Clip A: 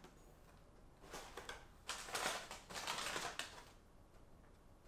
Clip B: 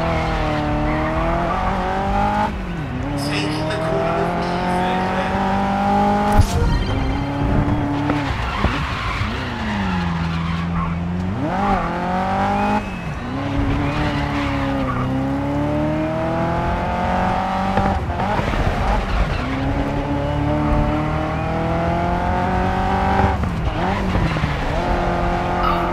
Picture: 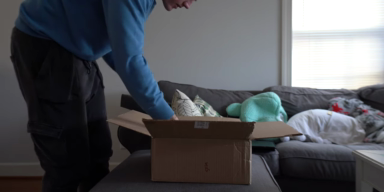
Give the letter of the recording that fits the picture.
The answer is A